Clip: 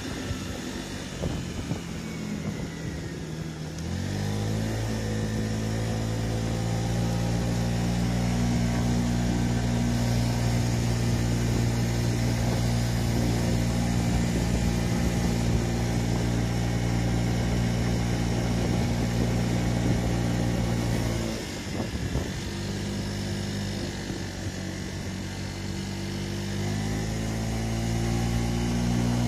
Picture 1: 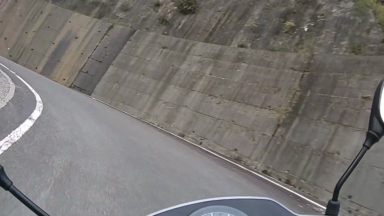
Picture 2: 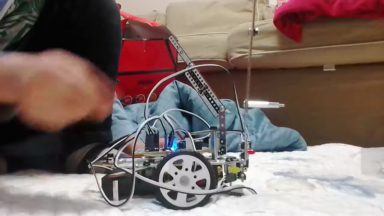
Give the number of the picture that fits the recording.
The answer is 1